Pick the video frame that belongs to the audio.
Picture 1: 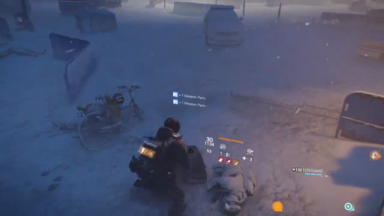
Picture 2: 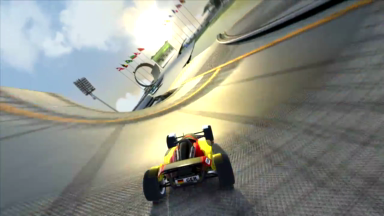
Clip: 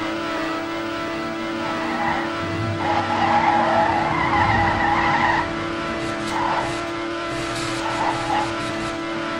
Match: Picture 2